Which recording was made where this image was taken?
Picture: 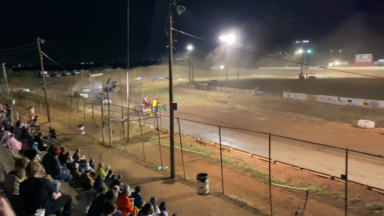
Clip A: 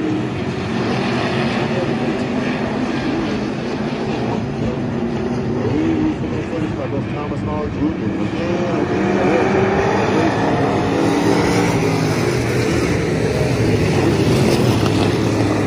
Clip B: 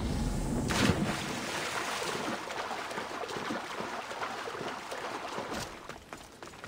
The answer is A